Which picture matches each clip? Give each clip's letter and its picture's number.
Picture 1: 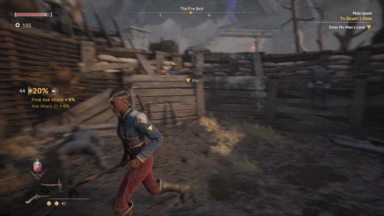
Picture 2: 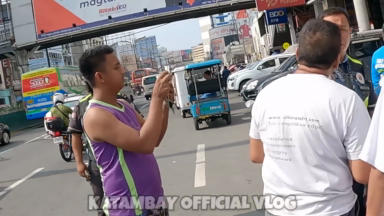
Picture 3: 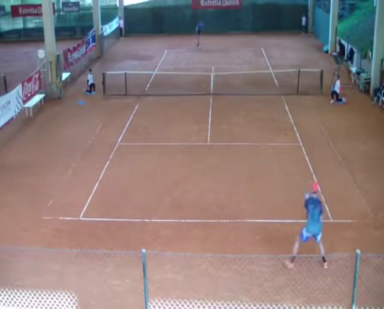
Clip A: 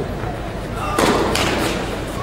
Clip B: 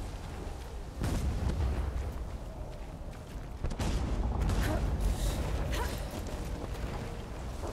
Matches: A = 3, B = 1